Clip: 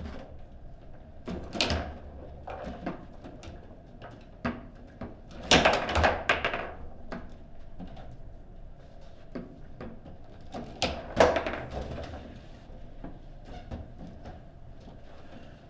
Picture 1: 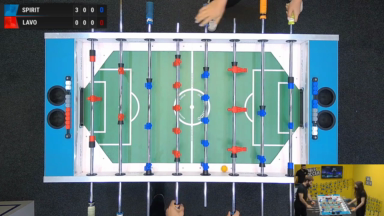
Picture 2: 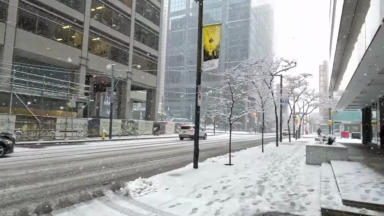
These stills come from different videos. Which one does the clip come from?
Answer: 1